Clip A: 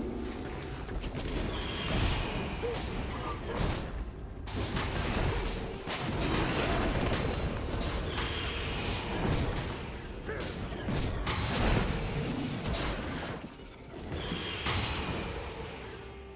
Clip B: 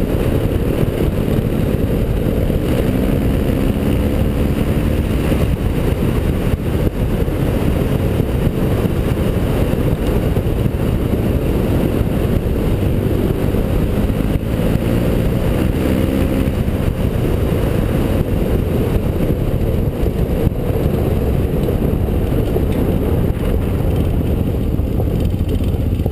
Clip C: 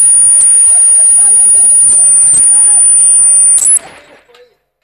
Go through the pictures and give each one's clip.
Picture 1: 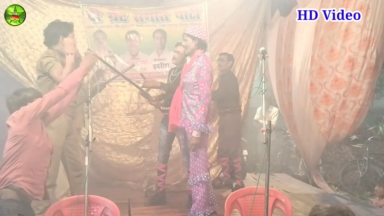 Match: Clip C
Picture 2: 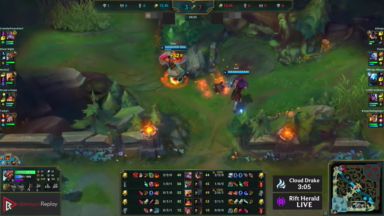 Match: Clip A